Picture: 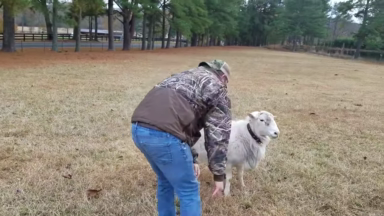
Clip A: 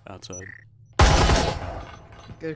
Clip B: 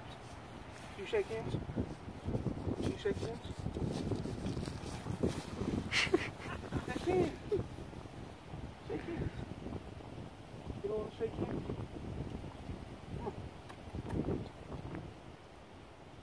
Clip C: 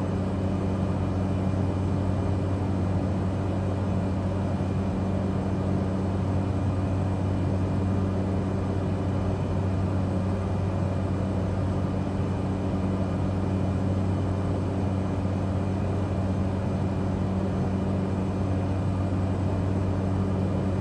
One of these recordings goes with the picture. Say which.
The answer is B